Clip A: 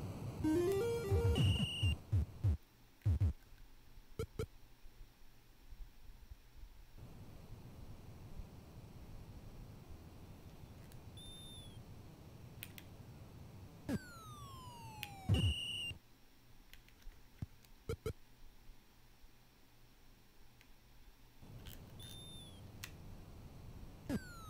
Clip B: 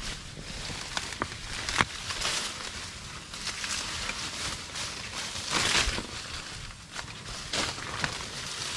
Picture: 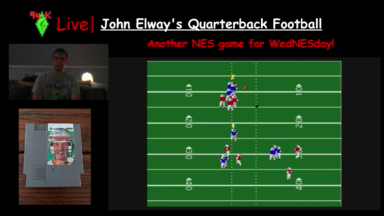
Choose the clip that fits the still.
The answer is A